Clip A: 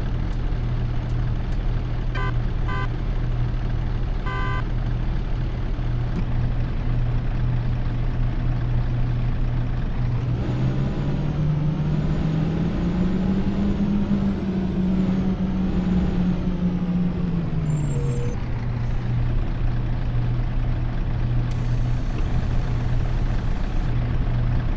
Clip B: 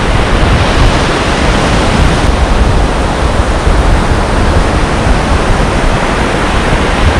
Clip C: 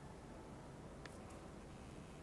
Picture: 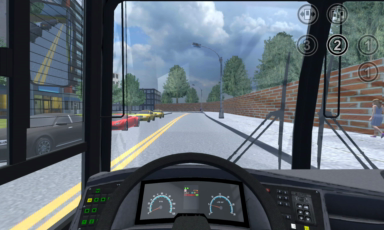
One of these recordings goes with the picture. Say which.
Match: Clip A